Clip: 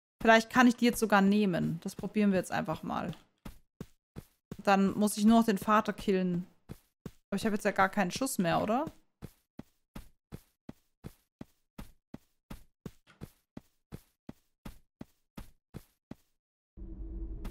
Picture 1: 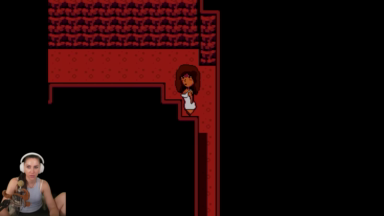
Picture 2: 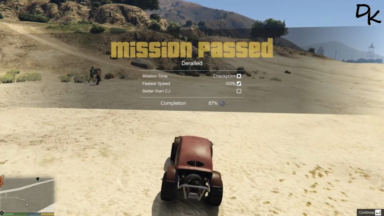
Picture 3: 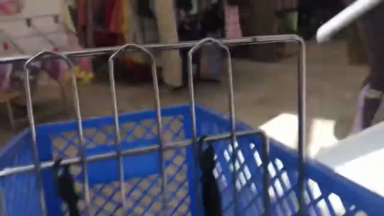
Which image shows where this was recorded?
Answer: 1